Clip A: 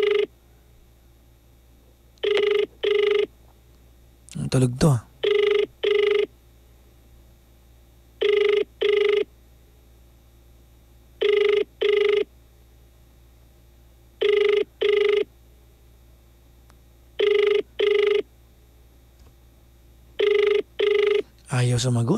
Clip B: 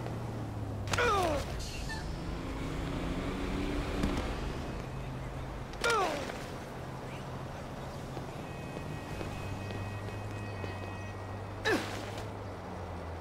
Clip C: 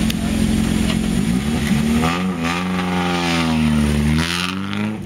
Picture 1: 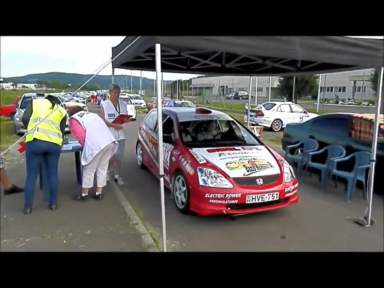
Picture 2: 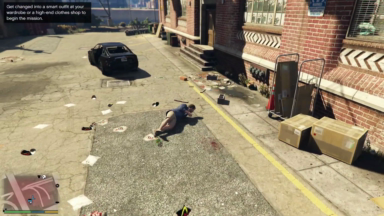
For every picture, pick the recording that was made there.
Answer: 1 C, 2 B